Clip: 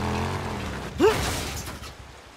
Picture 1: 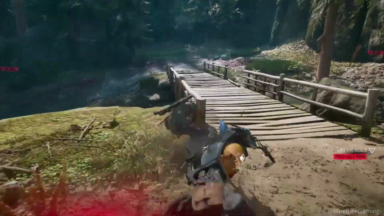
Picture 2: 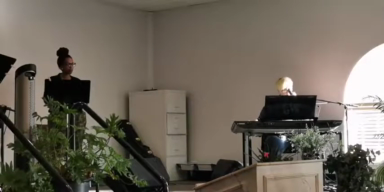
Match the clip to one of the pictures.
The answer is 1